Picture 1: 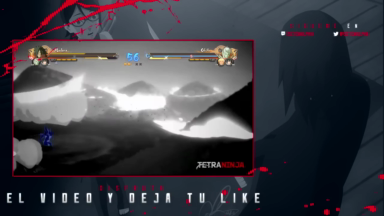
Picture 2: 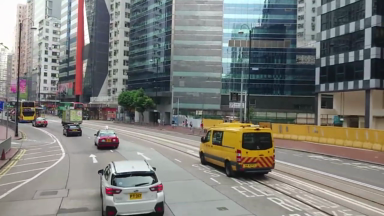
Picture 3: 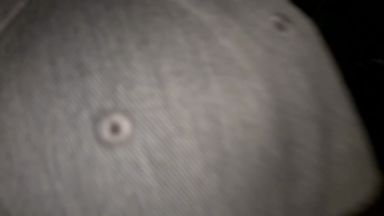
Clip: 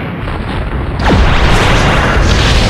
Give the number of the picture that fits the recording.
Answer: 1